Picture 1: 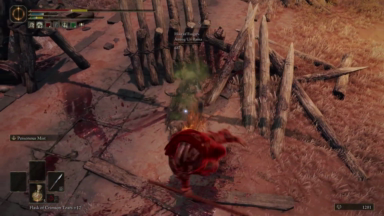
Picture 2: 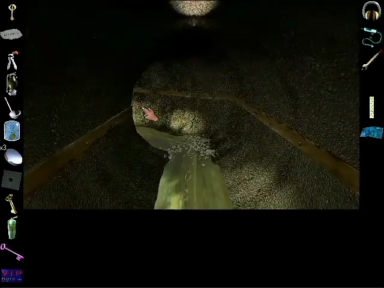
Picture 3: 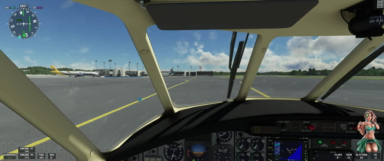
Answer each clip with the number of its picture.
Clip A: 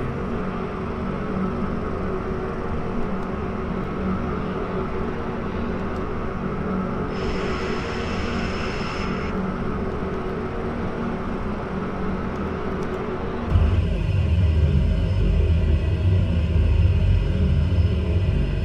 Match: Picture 3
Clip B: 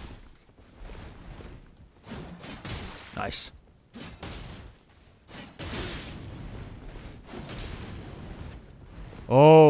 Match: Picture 1